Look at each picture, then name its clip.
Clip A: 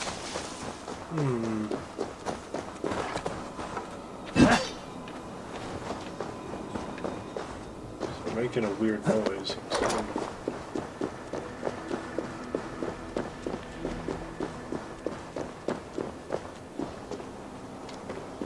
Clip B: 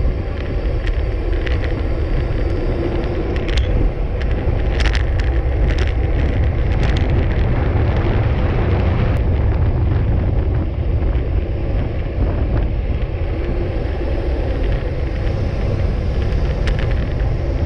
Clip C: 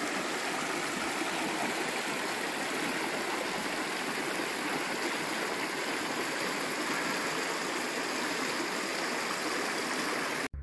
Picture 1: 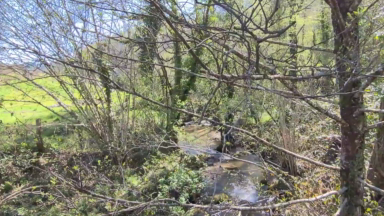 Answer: C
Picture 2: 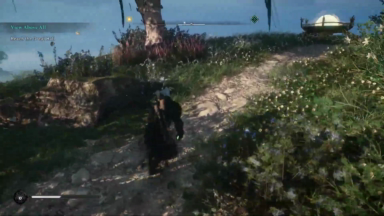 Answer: A